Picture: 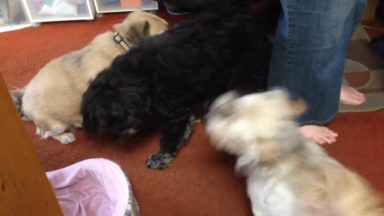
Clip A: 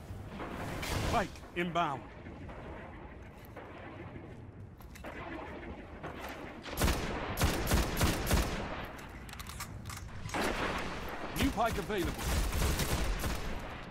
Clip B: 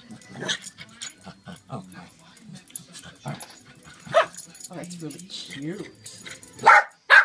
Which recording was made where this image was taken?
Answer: B